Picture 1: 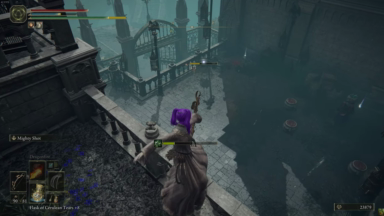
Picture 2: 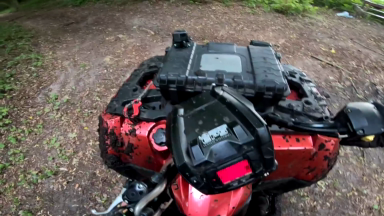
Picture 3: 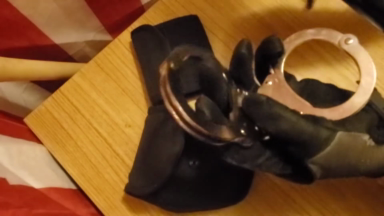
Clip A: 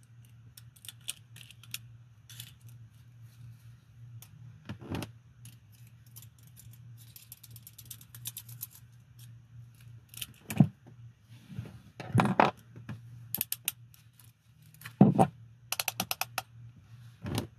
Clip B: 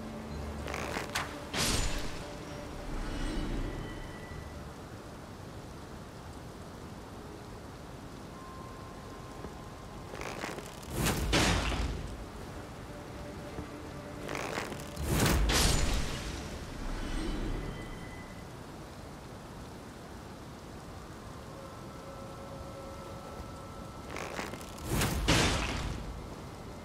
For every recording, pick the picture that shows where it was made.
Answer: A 3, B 1